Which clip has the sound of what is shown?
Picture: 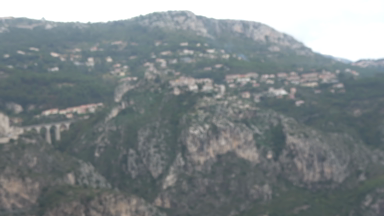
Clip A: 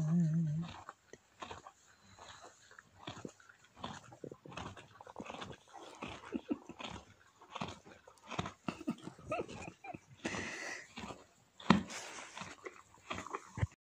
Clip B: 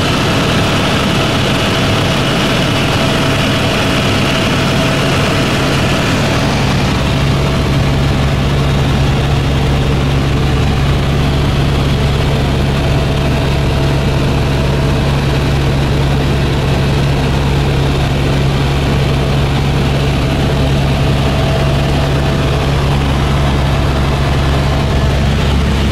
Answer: B